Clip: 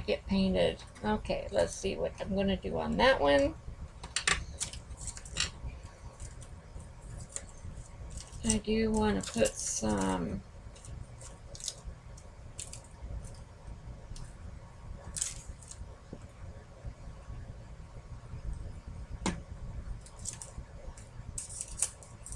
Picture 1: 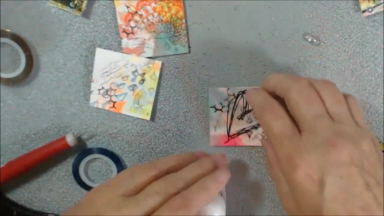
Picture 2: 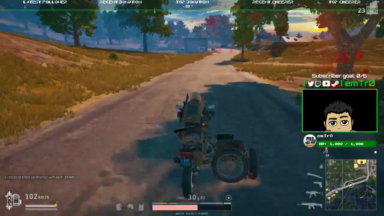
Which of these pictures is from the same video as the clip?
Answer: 1